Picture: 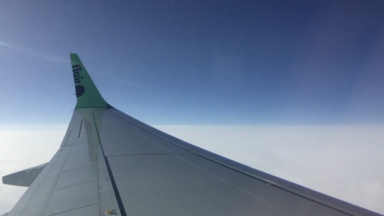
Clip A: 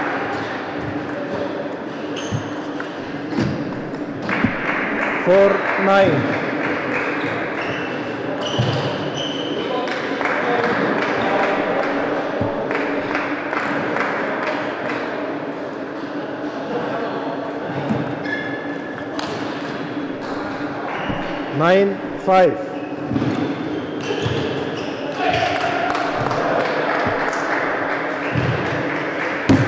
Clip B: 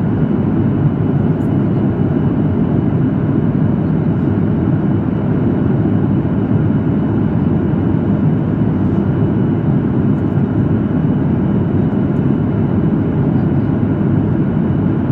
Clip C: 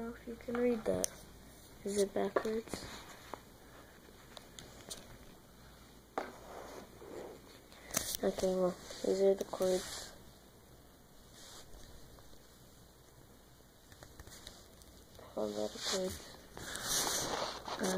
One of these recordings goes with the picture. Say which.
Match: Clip B